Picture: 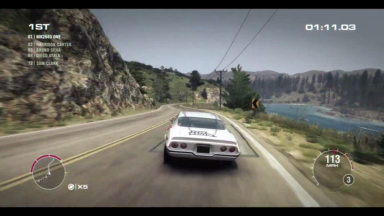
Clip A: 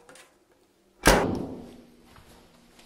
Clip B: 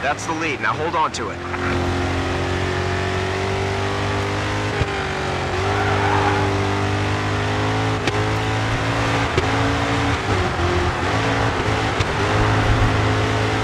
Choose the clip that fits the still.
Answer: B